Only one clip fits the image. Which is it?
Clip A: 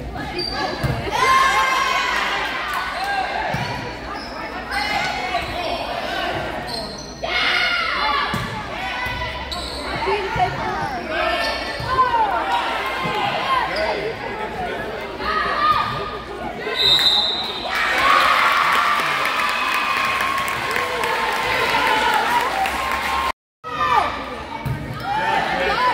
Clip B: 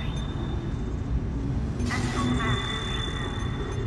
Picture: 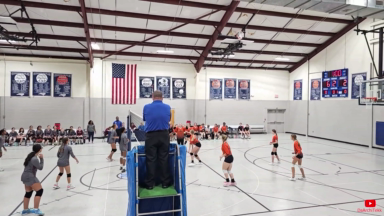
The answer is A